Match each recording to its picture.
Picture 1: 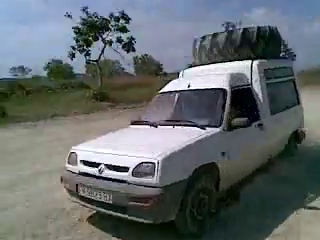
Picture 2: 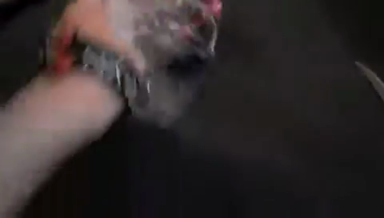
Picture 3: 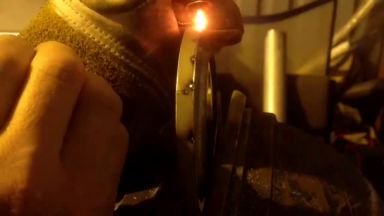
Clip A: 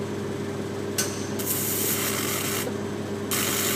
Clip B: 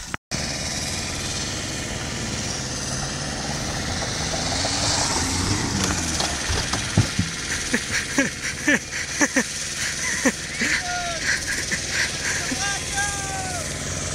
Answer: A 3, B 1